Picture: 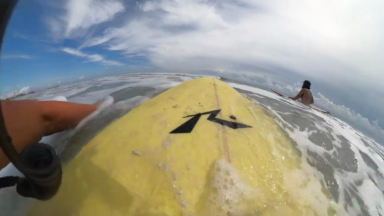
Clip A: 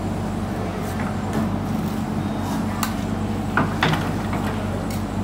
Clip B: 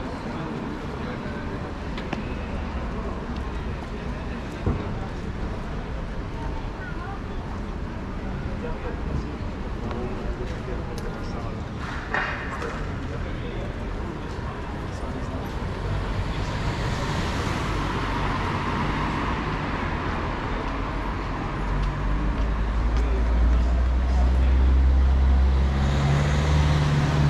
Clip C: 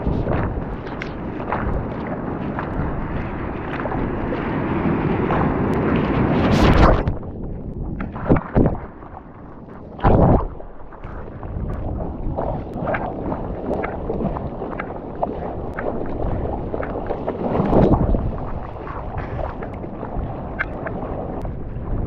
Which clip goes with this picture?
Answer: C